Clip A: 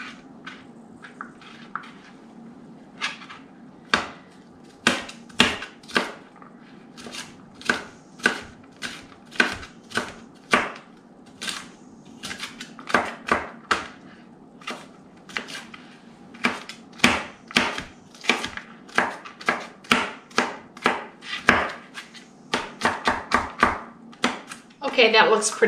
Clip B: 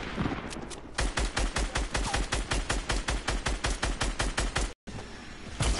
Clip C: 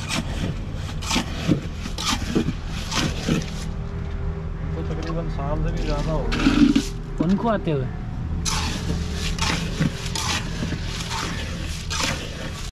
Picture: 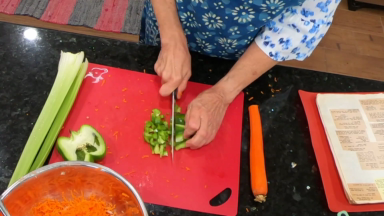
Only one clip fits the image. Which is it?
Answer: A